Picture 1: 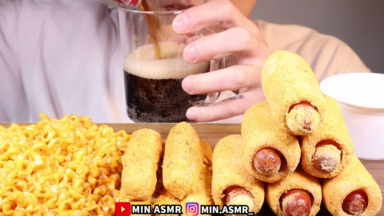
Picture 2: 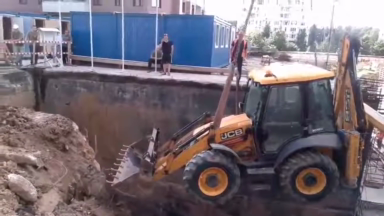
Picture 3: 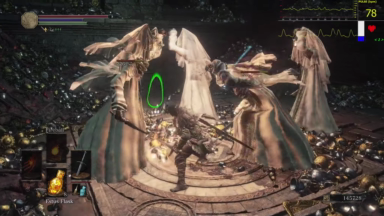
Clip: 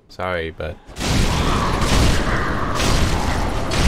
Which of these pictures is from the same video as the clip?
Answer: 3